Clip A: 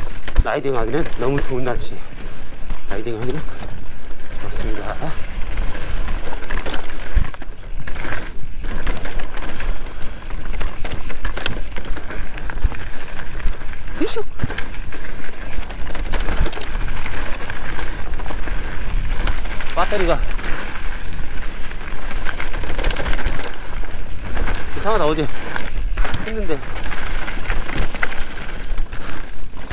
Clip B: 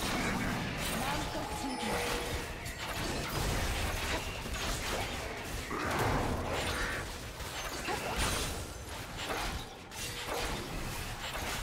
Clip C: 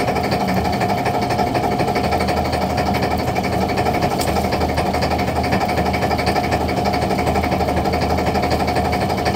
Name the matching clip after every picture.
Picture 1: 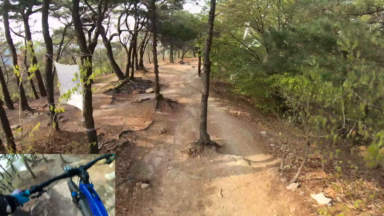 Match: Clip A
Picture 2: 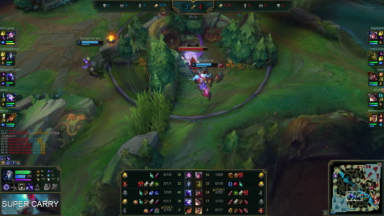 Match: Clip B